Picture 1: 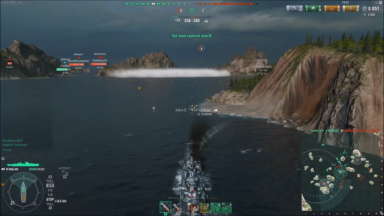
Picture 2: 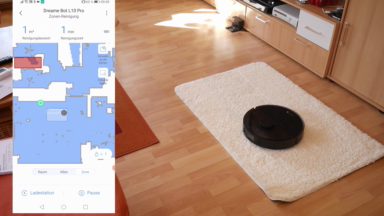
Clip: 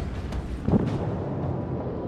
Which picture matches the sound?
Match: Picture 1